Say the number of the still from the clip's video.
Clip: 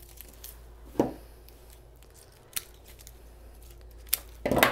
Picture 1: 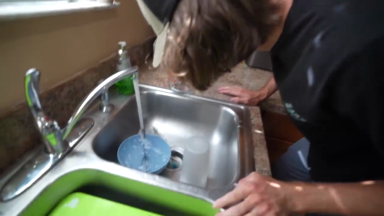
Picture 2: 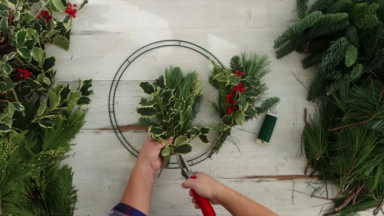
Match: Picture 2